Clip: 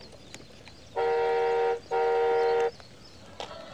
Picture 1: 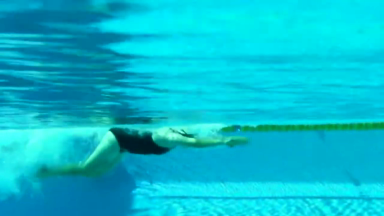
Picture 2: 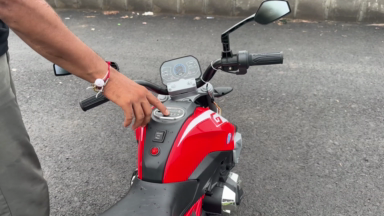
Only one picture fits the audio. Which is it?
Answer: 2